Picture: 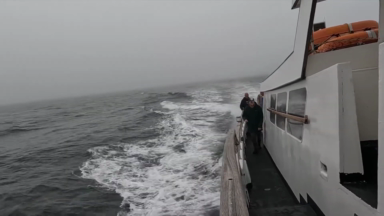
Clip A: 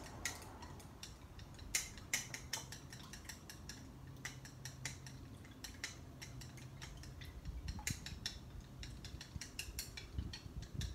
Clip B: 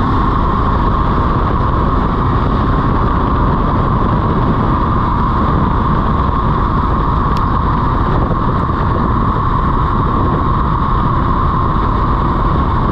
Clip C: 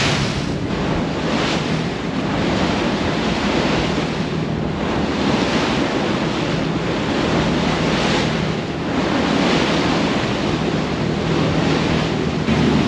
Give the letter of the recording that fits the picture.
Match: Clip C